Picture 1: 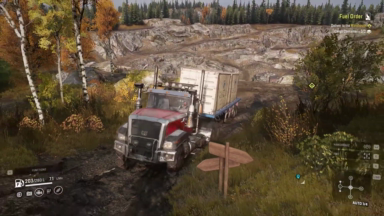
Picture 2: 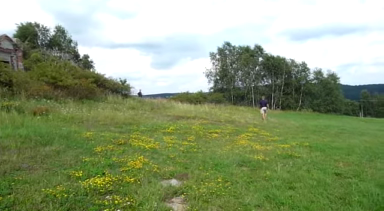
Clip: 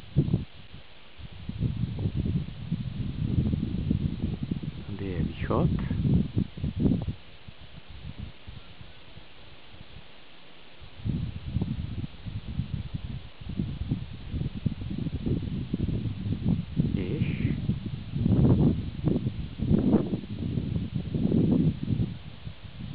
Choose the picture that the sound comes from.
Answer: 2